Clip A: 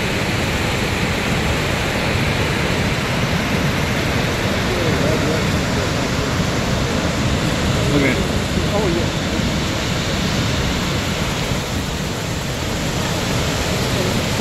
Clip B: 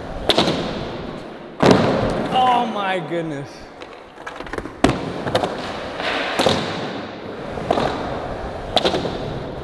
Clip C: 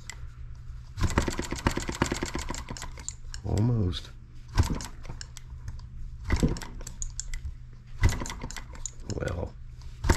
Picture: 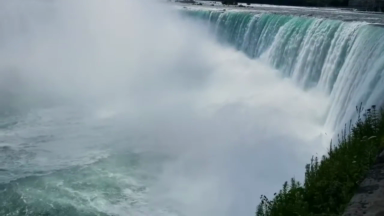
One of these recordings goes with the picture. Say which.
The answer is A